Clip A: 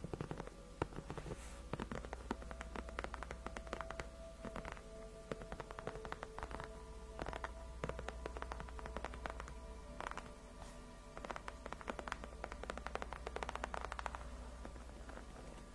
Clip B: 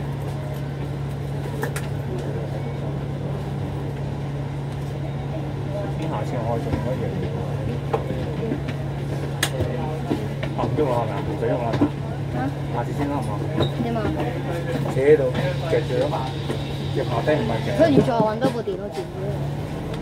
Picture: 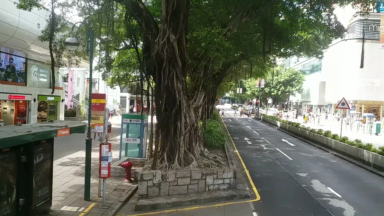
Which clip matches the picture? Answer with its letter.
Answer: B